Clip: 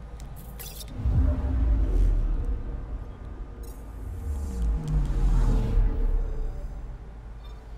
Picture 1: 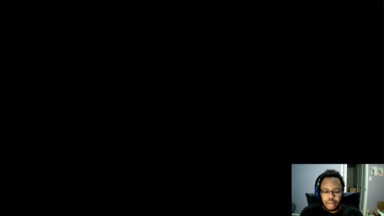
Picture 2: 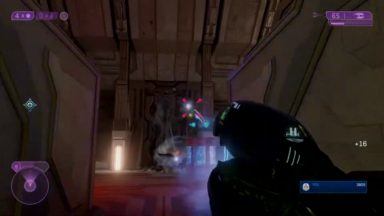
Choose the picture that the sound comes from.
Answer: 1